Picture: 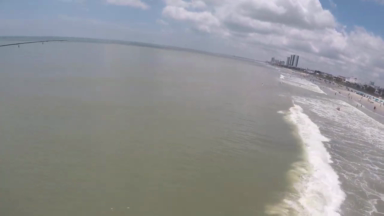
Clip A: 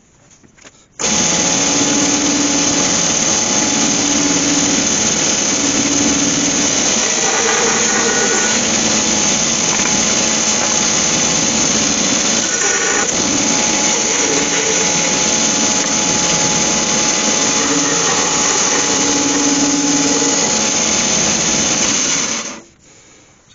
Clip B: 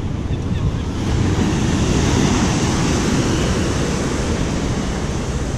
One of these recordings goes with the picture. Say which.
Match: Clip B